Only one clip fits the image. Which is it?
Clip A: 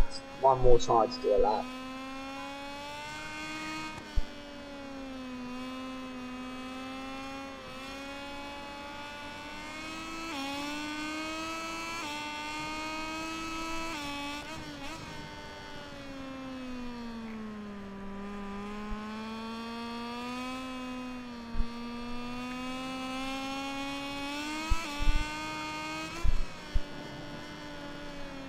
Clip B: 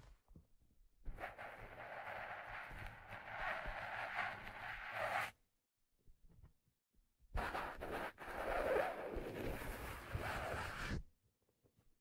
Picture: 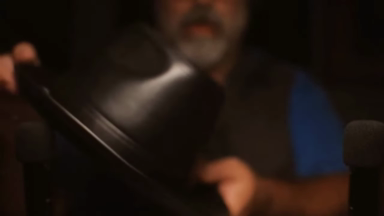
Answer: B